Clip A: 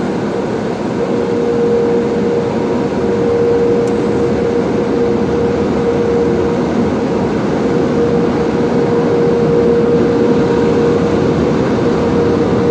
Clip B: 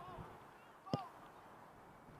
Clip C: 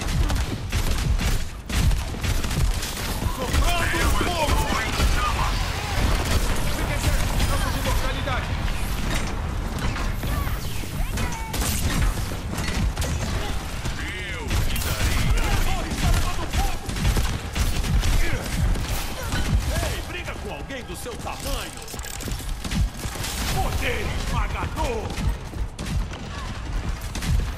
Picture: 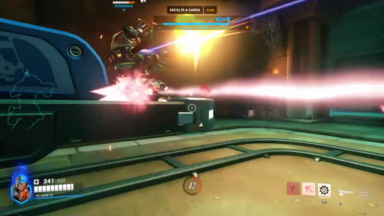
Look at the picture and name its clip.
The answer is C